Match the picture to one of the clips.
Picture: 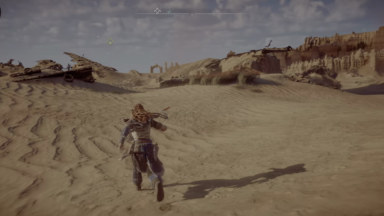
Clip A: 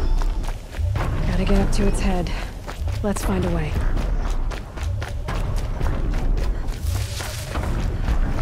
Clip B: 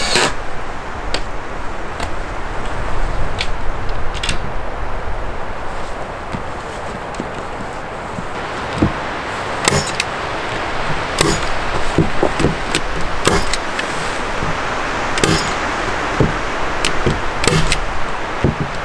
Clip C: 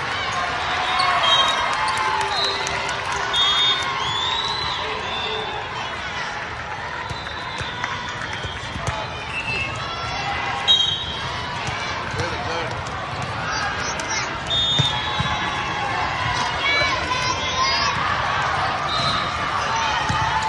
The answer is A